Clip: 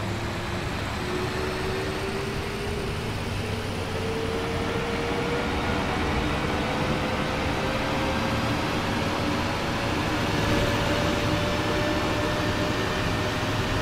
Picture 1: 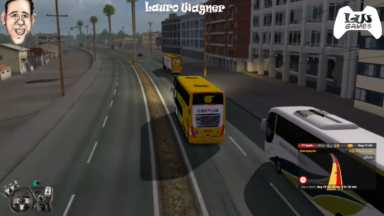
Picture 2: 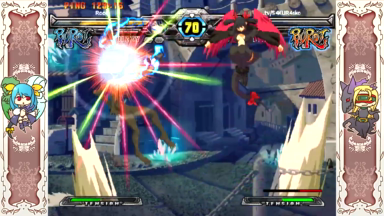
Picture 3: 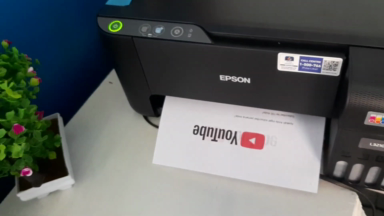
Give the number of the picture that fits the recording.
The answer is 1